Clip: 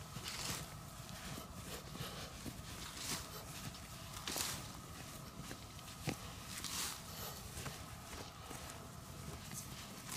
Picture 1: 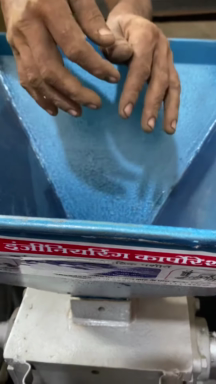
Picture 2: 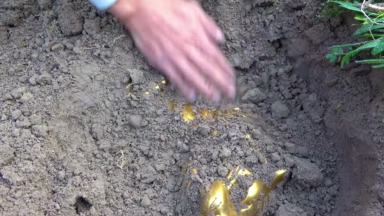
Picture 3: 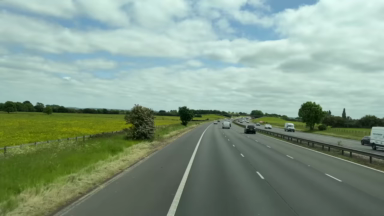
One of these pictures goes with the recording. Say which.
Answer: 2